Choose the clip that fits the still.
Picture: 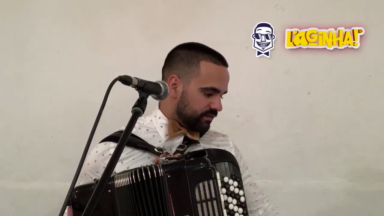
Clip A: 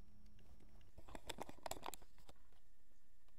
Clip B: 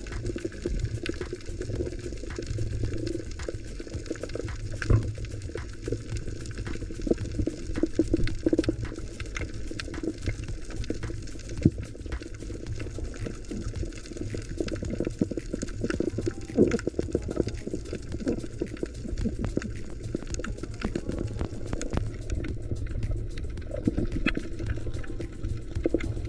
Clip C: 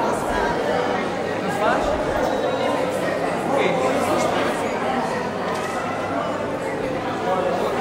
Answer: C